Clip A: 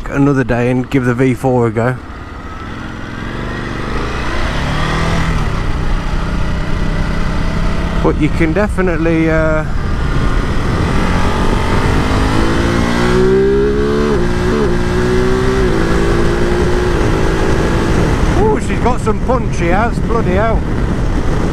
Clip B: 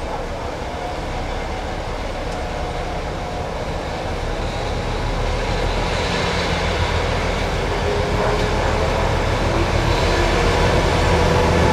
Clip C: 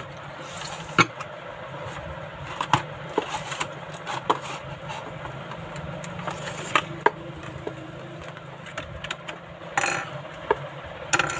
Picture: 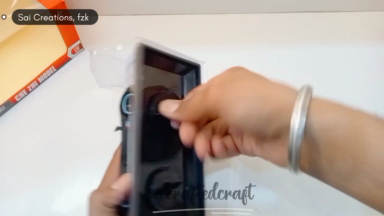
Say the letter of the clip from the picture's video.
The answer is C